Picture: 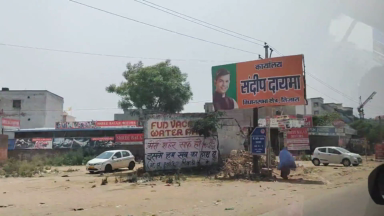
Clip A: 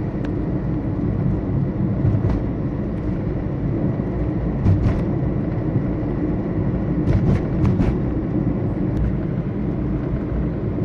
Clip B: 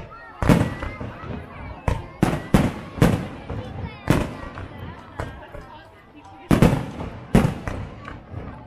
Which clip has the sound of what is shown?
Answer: A